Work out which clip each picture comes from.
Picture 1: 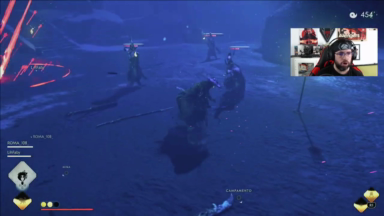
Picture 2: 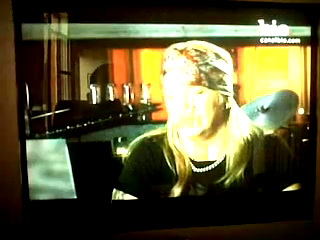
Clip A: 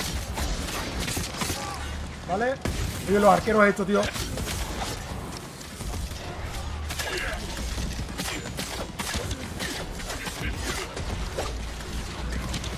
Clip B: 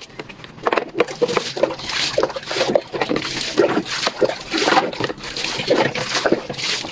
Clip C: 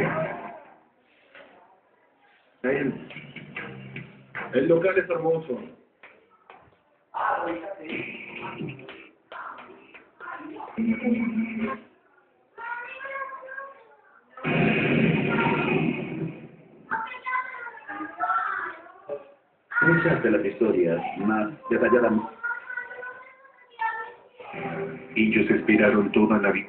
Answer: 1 A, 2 C